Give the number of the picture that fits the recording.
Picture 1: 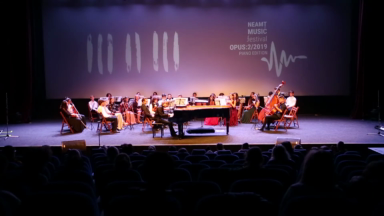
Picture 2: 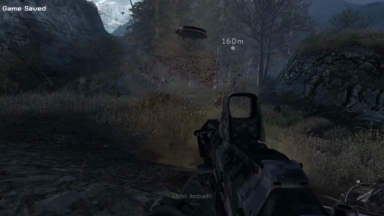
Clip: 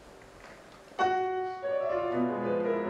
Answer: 1